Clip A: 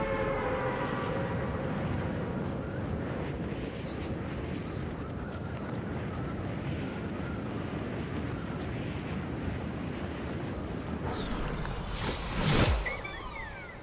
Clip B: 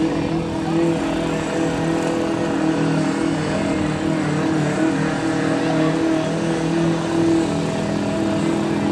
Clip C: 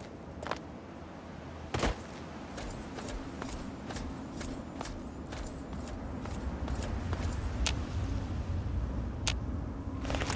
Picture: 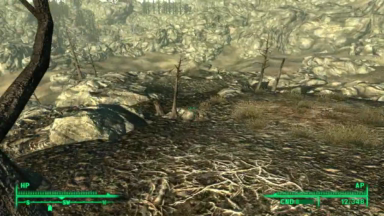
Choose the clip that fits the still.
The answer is C